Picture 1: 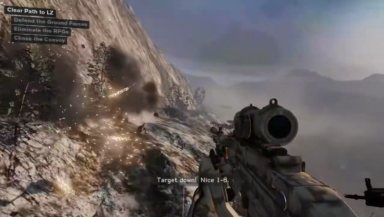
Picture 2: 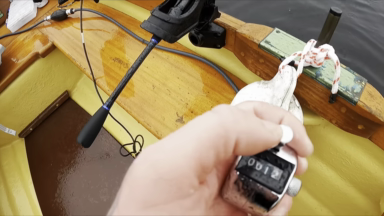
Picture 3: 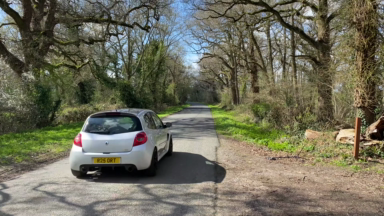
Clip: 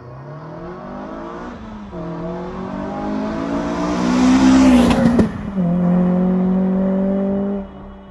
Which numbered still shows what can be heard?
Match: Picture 3